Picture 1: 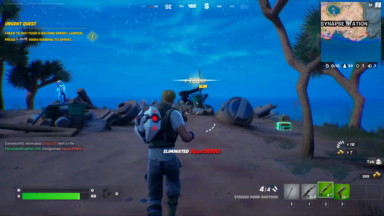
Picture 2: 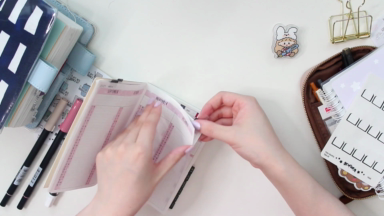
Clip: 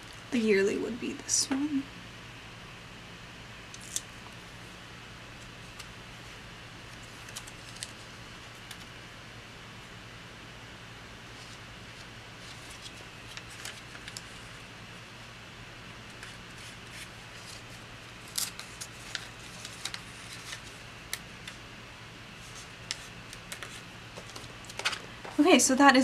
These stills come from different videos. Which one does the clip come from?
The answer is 2